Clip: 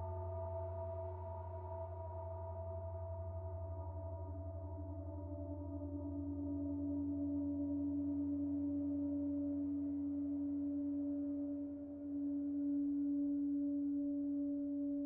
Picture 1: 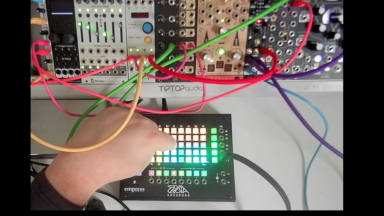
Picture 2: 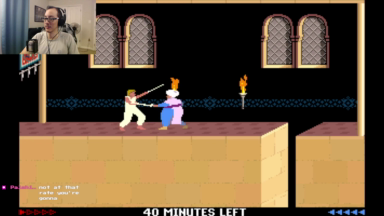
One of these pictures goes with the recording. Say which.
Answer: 1